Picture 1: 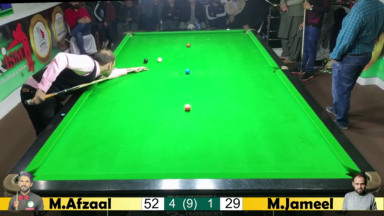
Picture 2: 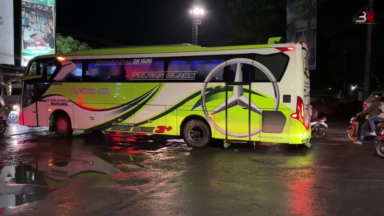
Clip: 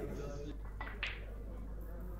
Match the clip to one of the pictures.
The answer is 1